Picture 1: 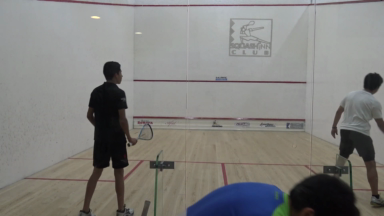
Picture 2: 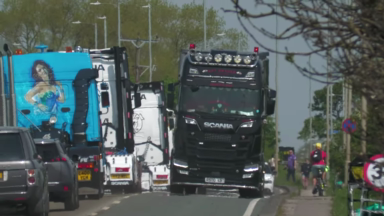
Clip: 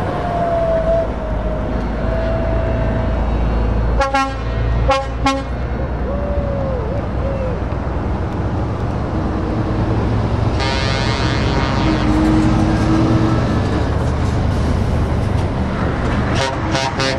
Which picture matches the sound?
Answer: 2